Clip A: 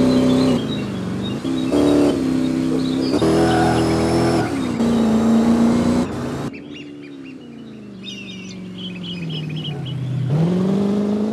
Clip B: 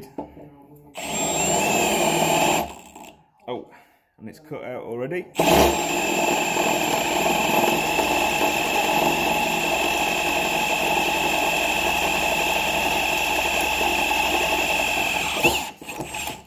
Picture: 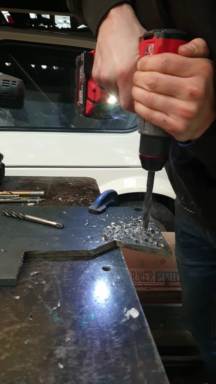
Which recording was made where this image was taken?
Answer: B